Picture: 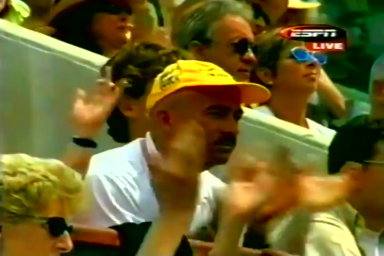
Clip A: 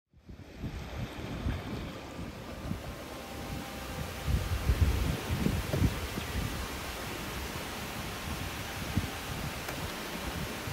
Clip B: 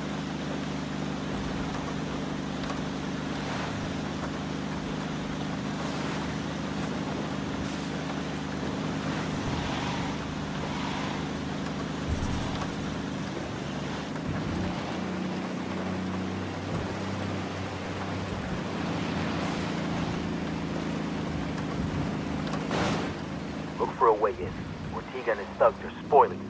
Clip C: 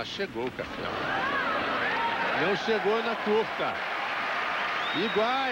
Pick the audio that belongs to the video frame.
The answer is C